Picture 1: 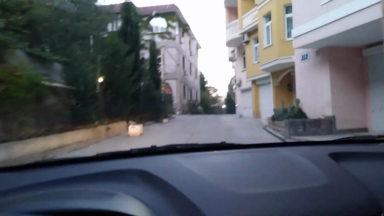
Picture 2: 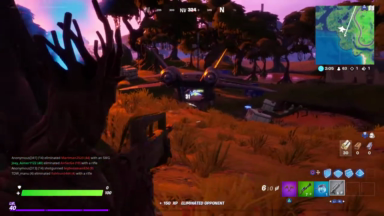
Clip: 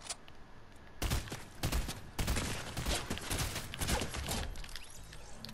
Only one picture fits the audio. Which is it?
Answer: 2